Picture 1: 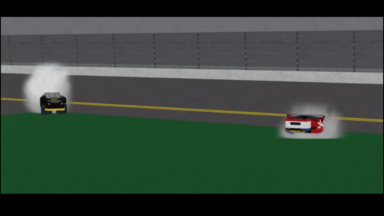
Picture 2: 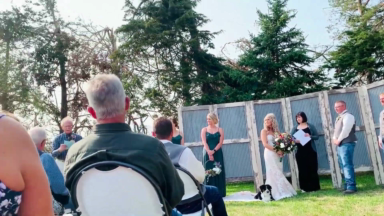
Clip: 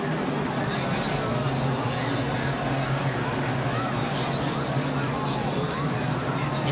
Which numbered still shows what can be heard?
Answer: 1